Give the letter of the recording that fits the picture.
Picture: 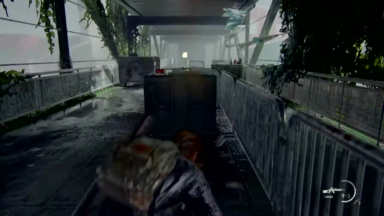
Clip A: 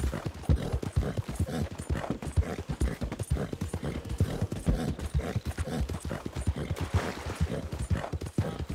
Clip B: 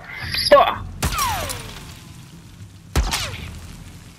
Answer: B